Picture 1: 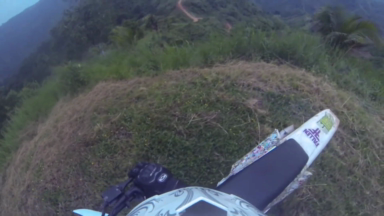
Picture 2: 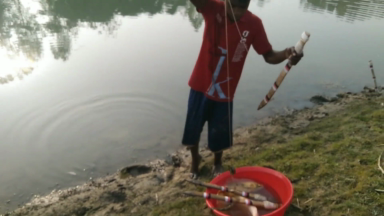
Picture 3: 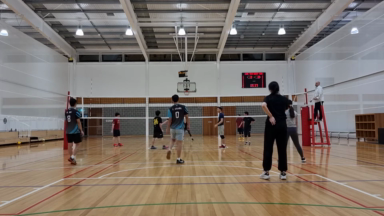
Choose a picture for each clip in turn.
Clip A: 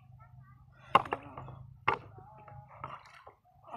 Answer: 2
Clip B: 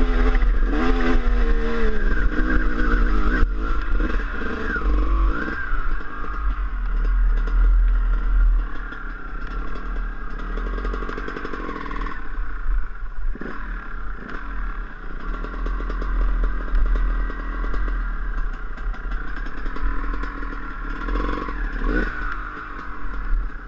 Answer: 1